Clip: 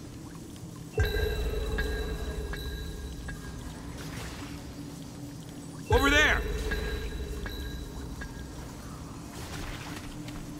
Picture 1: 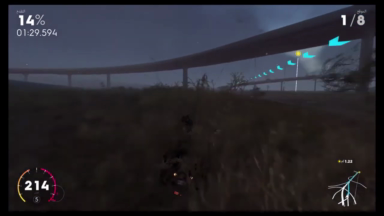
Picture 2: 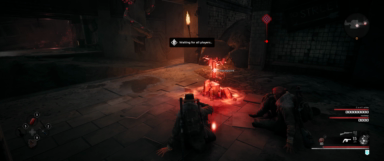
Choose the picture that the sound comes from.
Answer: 2